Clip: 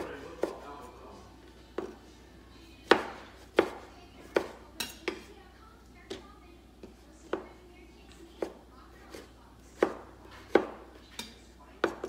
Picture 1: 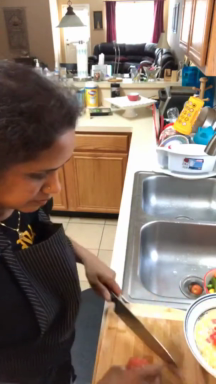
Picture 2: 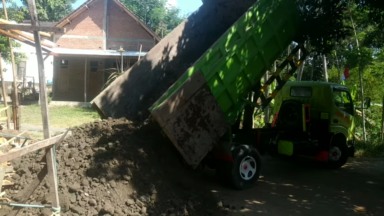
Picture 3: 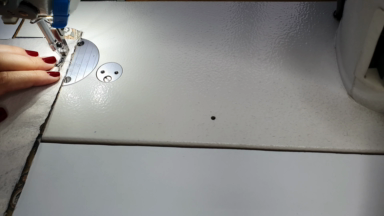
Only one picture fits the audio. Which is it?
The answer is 1